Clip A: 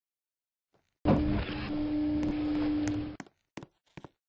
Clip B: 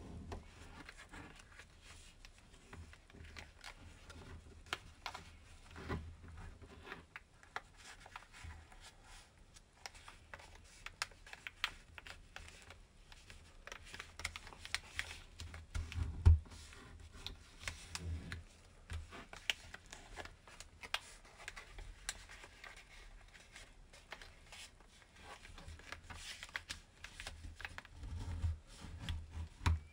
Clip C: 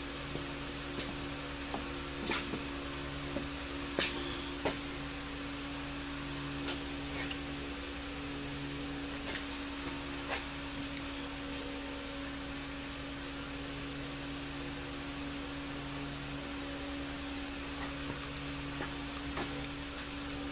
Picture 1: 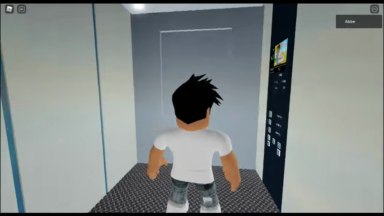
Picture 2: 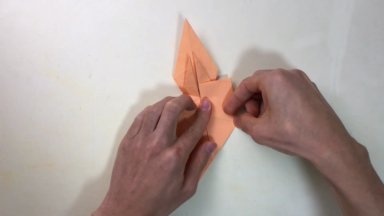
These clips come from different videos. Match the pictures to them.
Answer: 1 A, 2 B